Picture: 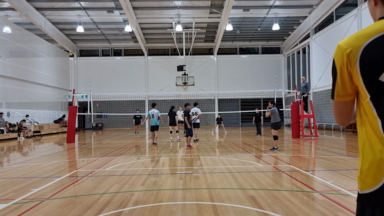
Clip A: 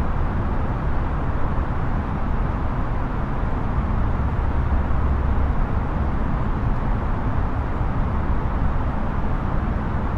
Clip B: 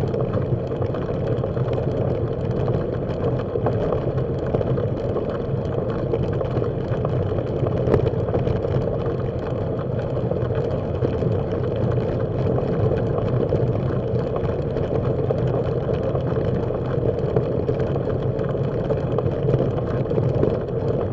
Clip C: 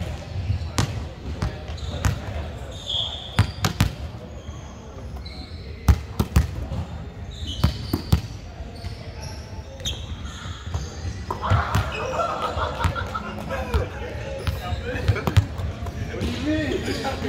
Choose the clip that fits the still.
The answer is C